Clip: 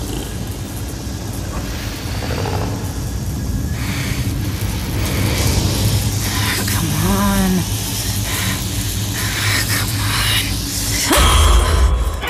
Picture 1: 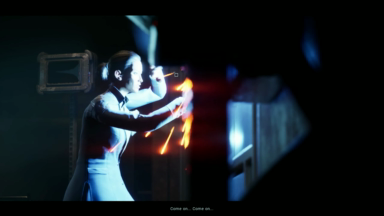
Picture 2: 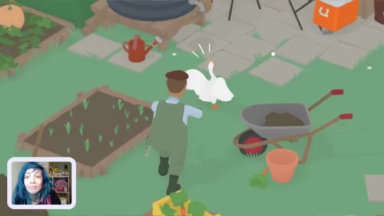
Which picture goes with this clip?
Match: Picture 1